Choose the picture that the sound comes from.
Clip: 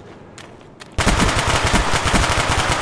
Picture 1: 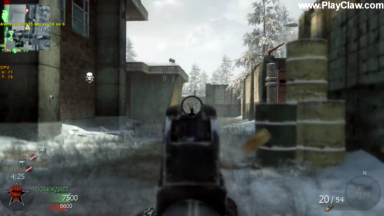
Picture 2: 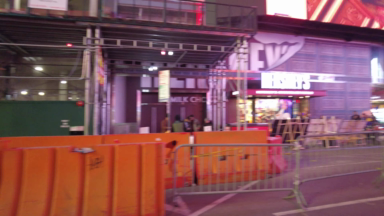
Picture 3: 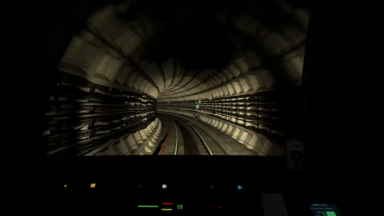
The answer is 1